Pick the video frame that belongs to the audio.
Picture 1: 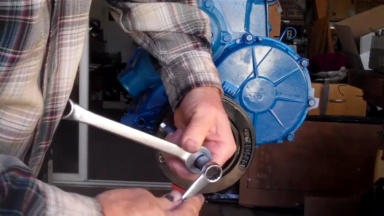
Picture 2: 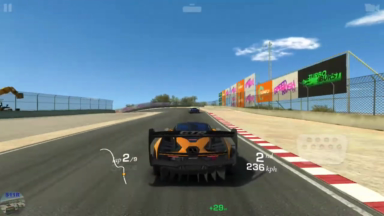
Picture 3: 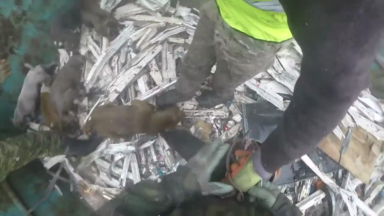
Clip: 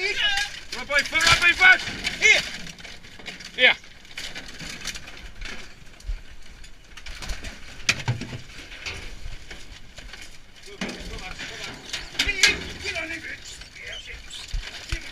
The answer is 3